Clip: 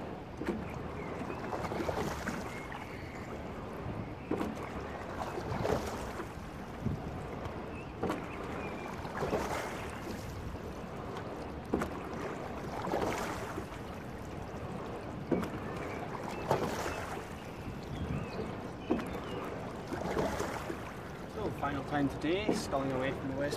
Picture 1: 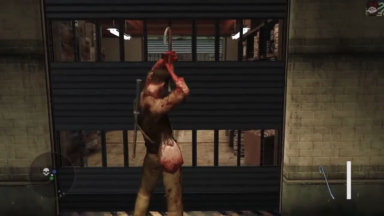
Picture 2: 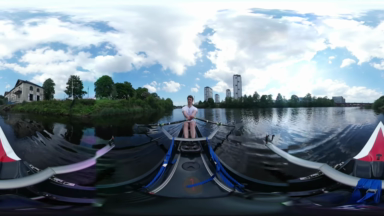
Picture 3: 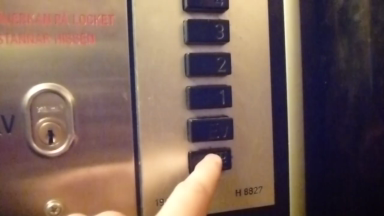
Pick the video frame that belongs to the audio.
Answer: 2